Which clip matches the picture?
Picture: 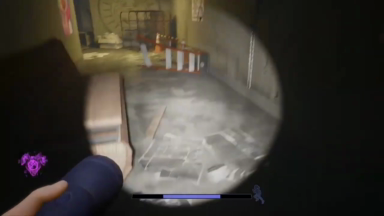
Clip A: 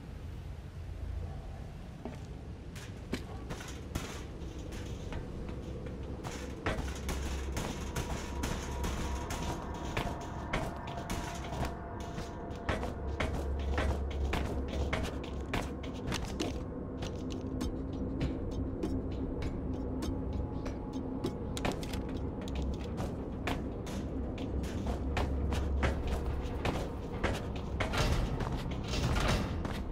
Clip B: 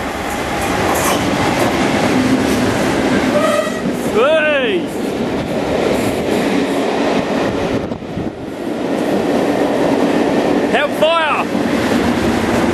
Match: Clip A